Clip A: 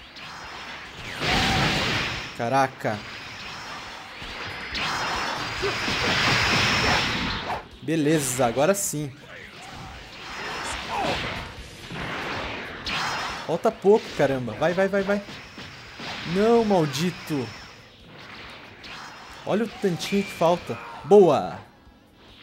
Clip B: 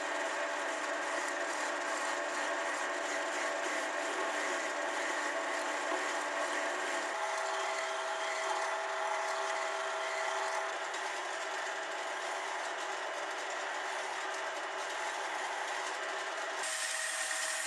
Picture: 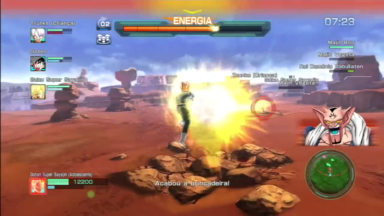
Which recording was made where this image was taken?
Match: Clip A